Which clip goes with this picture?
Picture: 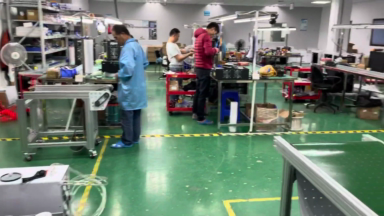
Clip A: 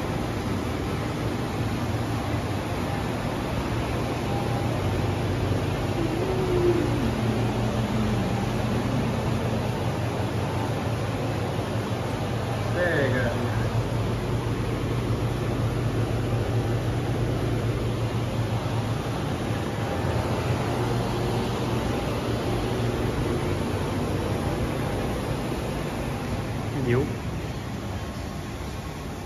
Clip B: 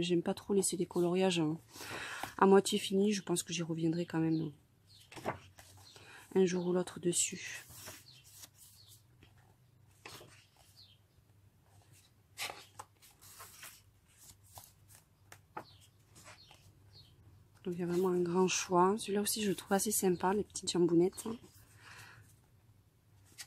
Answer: A